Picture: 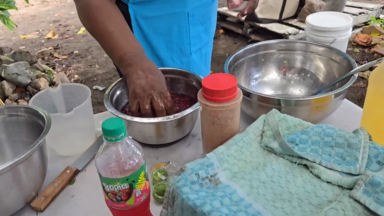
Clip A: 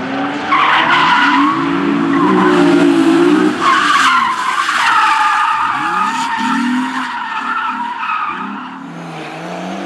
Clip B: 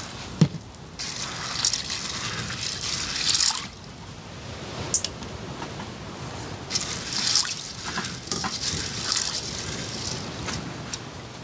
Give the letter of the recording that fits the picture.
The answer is B